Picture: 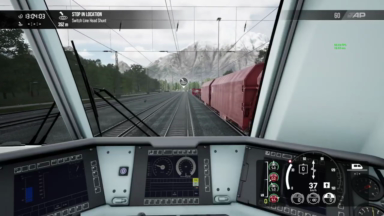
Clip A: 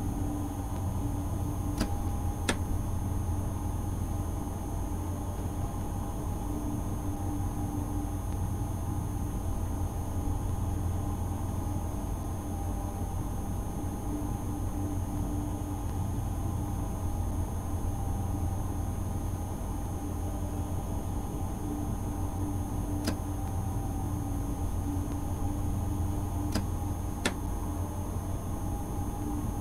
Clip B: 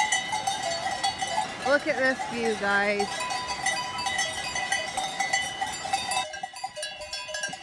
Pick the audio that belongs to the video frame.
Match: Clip A